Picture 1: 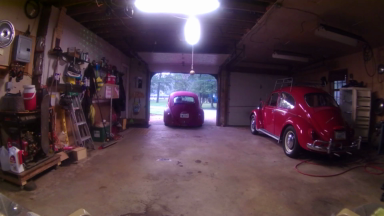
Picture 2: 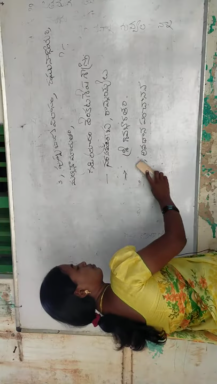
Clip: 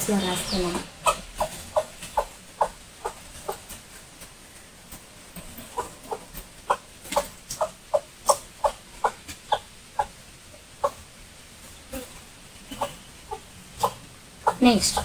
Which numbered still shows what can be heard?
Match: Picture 2